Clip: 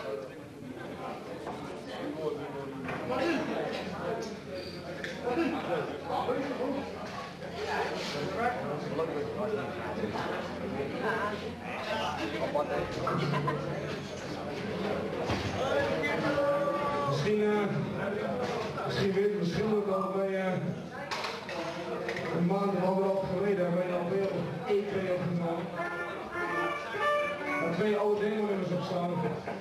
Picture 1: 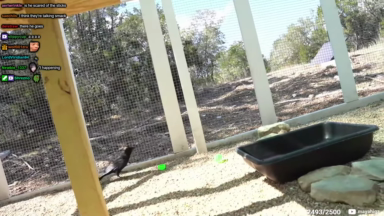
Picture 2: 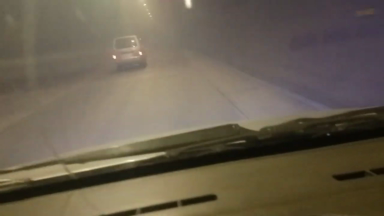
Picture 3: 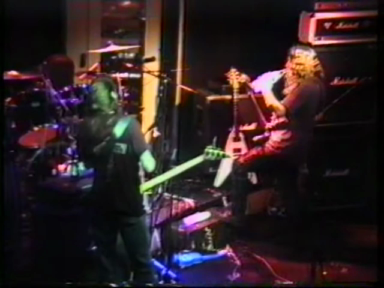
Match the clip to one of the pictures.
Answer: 3